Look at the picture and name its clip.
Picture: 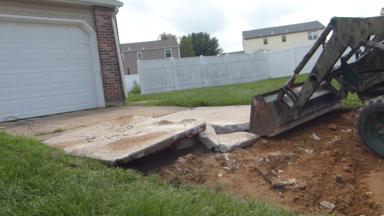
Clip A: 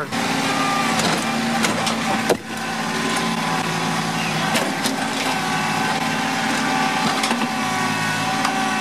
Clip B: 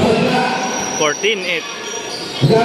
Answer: A